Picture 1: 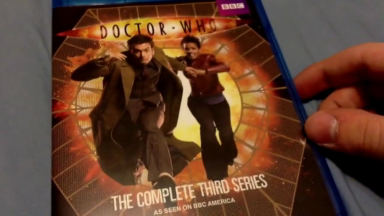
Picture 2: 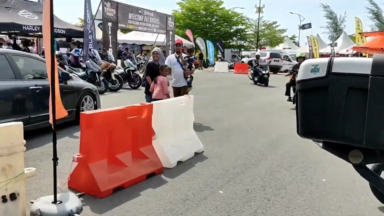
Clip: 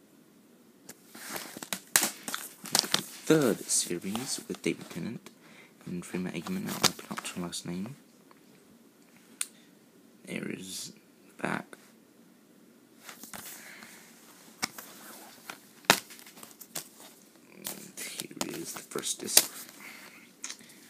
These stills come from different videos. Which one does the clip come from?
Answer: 1